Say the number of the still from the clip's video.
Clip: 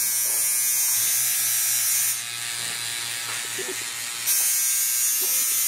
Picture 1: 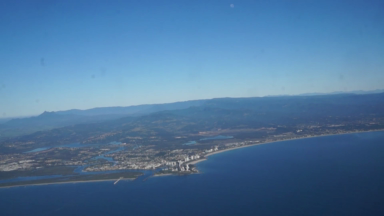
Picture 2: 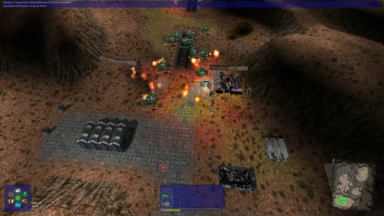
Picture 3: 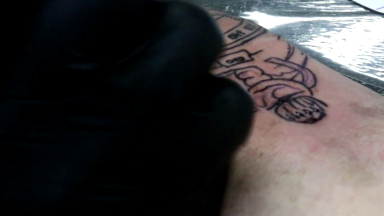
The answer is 3